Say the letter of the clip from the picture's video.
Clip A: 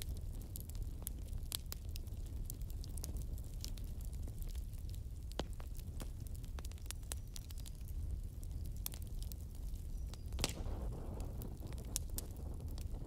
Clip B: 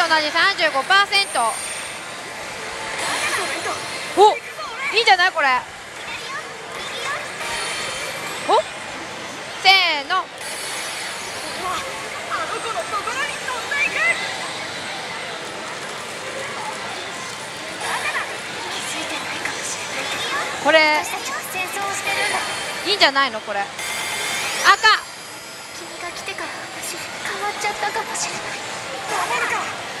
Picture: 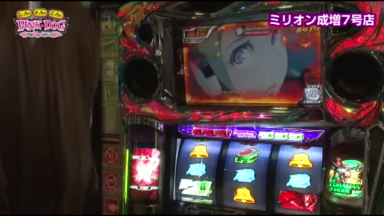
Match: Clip B